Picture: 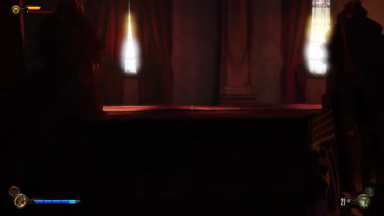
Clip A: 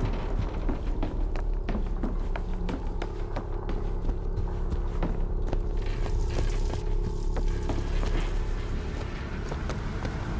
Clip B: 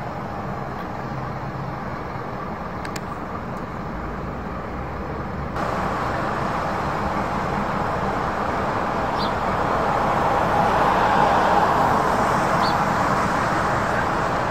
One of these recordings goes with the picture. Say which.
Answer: A